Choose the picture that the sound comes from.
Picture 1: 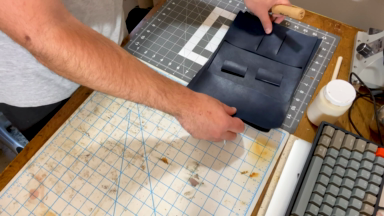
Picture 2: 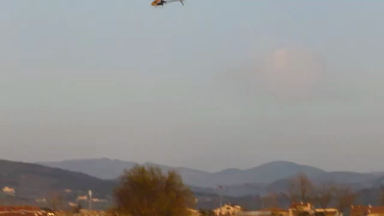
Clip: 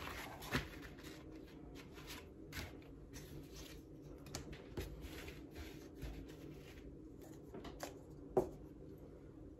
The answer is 1